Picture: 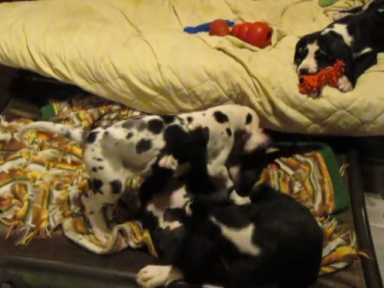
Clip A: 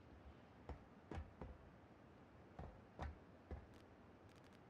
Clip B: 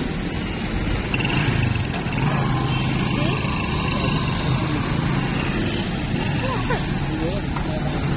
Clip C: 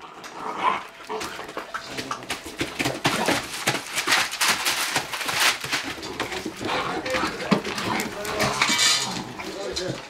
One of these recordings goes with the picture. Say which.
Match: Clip C